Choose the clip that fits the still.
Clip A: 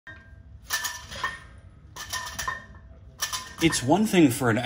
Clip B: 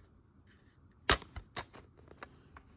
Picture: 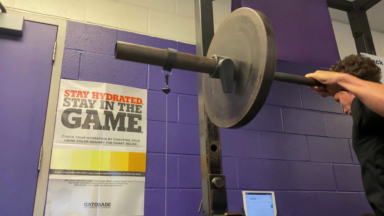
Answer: A